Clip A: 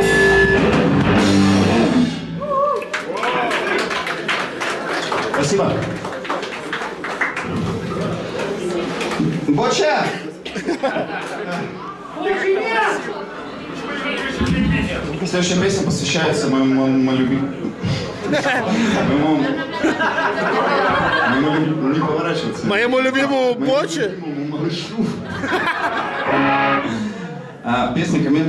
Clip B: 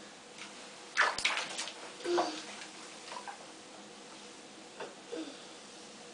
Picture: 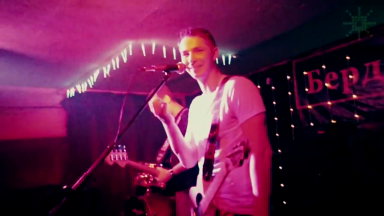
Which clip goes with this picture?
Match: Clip A